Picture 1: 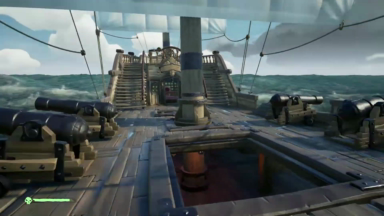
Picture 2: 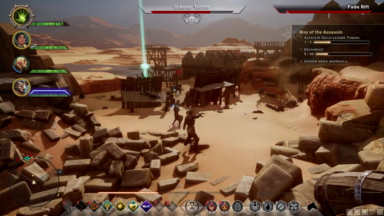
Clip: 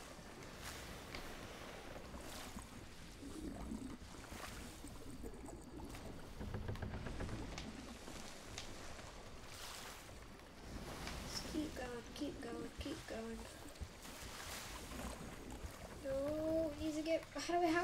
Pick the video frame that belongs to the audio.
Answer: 1